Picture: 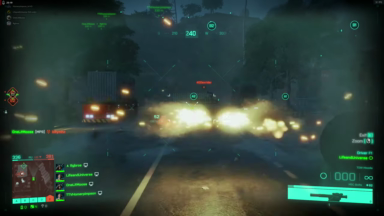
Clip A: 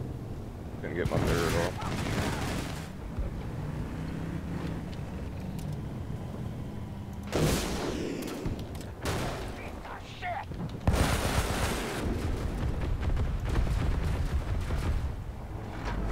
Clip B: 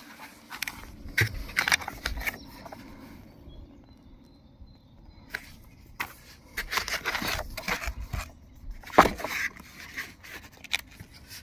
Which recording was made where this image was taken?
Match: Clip A